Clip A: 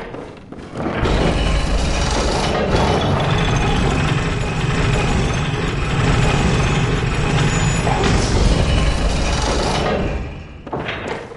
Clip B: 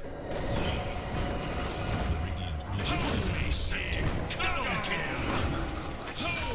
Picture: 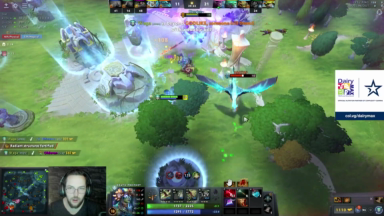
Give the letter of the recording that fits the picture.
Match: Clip B